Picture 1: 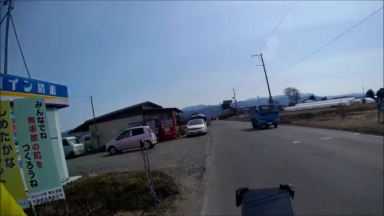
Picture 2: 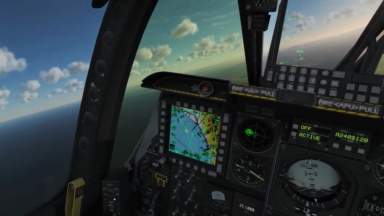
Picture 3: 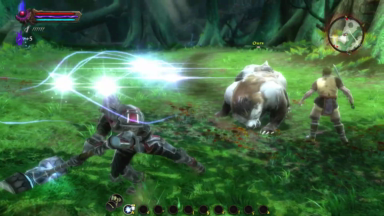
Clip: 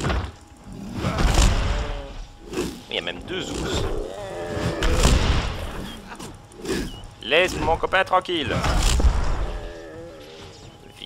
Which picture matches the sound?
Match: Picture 3